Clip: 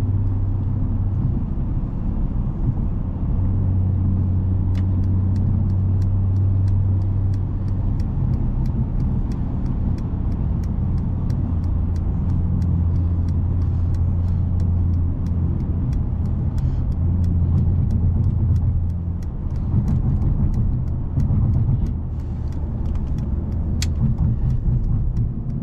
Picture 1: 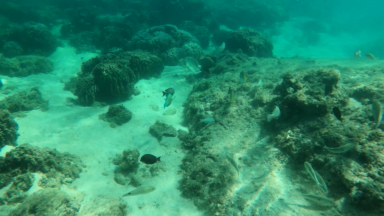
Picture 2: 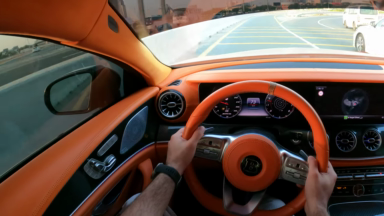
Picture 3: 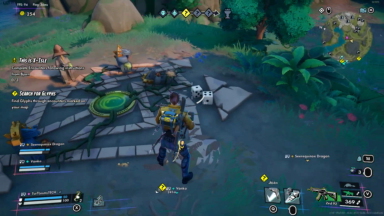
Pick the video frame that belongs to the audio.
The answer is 2